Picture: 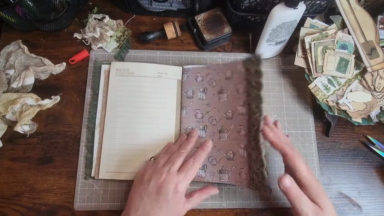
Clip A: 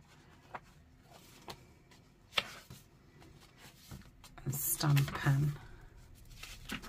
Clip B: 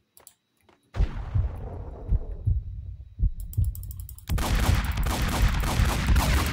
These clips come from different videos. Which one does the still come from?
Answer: A